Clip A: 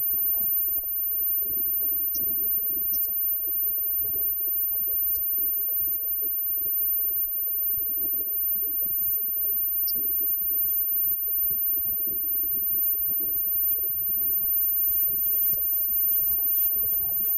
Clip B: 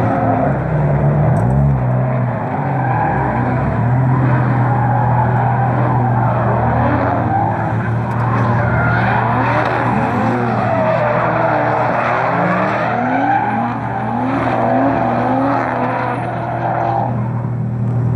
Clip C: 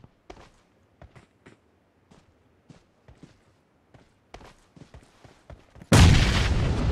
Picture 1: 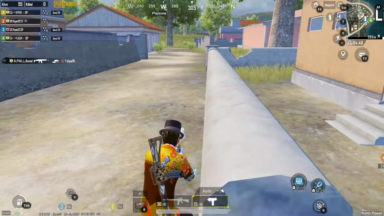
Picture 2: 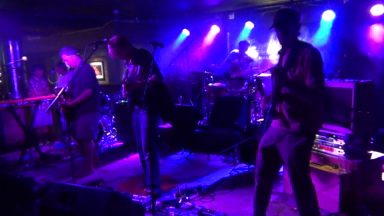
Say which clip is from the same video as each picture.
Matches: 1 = C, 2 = A